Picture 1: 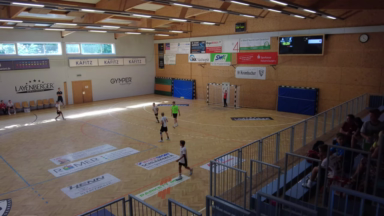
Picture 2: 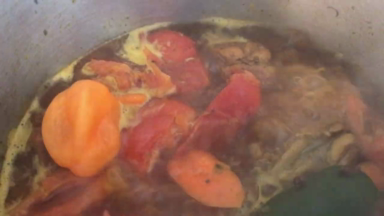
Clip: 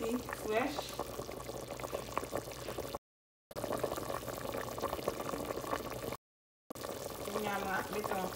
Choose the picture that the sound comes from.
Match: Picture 2